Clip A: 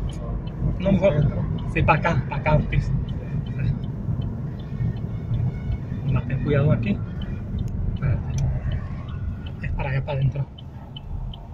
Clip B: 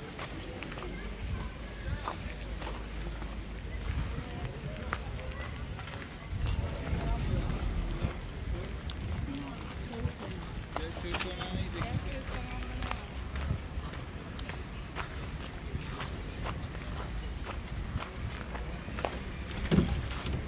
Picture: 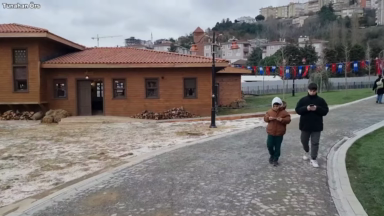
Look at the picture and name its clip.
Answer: B